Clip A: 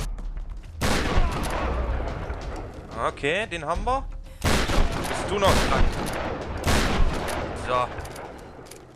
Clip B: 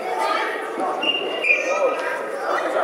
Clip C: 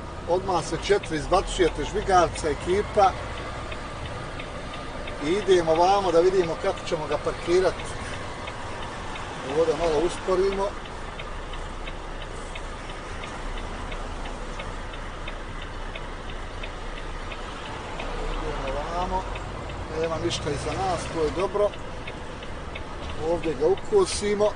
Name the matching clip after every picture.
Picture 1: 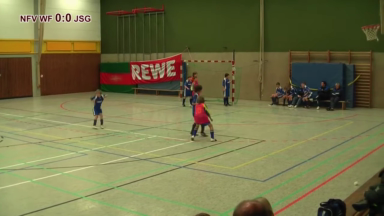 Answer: B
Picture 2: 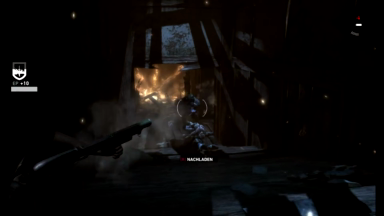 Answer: A